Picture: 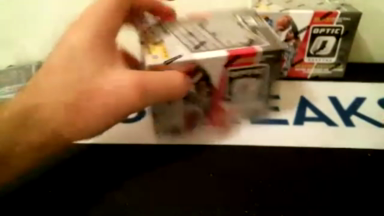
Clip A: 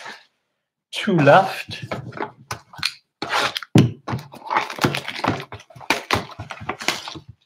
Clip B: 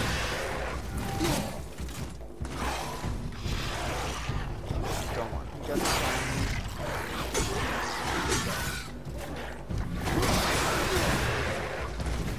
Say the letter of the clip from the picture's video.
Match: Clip A